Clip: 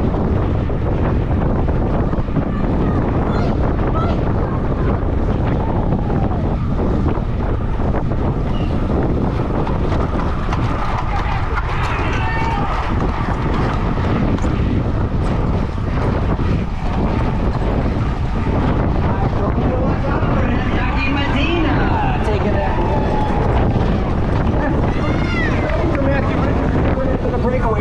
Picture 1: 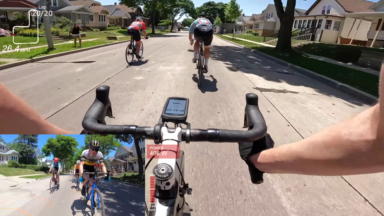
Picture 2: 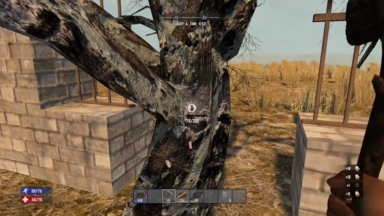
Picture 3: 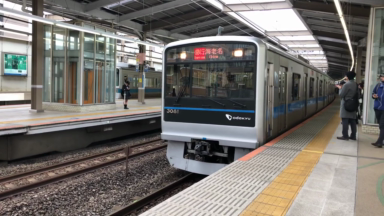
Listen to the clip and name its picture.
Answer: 1